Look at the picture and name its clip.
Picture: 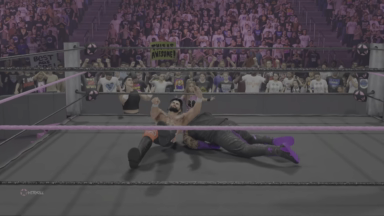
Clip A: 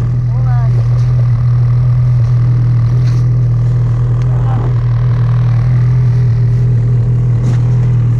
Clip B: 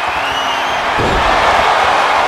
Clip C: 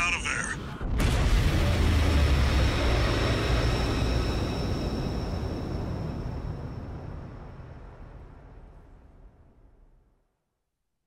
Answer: B